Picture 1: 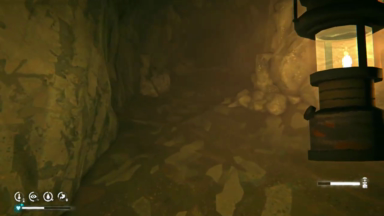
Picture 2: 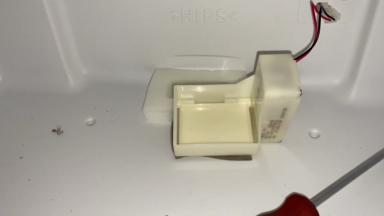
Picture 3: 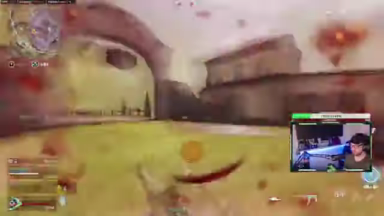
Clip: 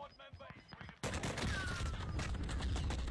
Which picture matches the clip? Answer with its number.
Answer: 3